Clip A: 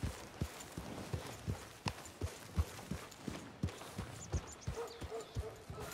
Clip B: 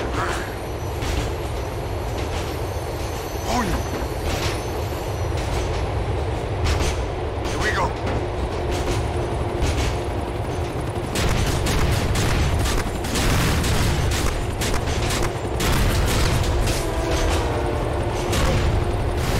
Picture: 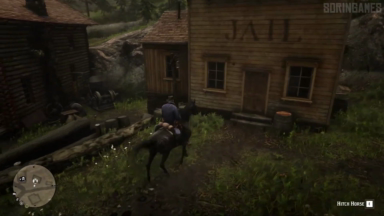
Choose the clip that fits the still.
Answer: A